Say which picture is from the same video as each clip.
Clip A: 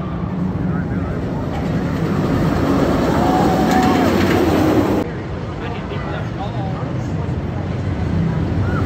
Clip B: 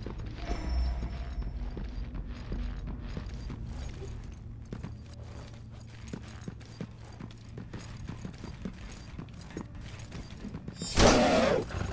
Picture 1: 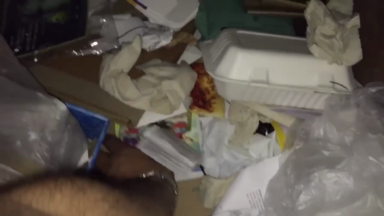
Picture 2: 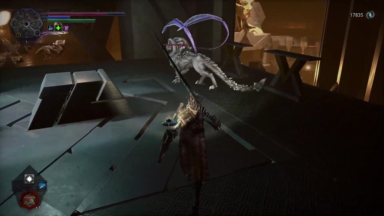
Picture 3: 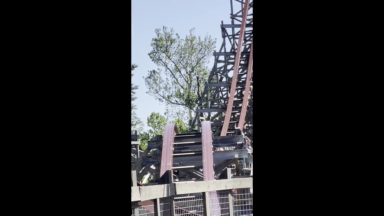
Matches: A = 3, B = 2